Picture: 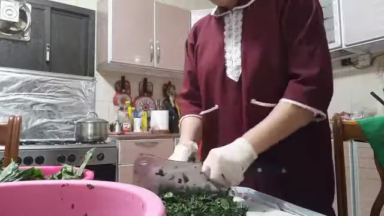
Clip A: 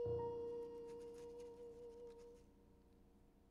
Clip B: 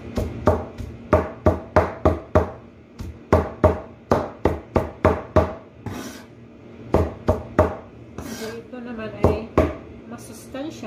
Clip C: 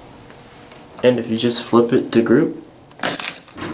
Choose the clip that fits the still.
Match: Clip B